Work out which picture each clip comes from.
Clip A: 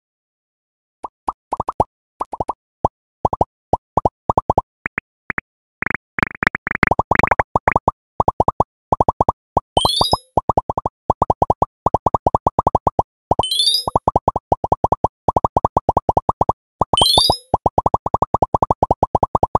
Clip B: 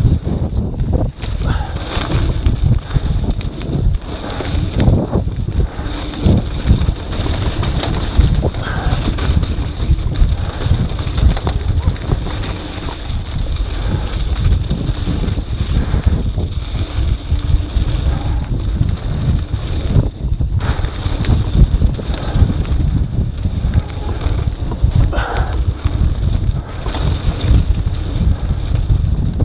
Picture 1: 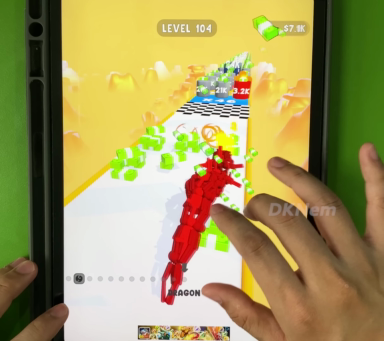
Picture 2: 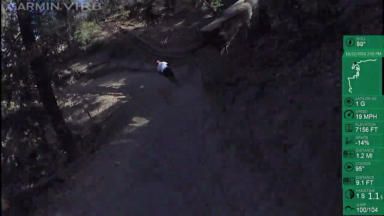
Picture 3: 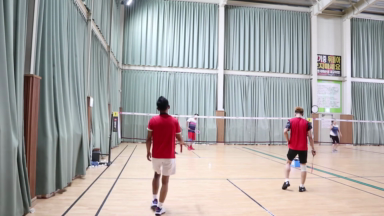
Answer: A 1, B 2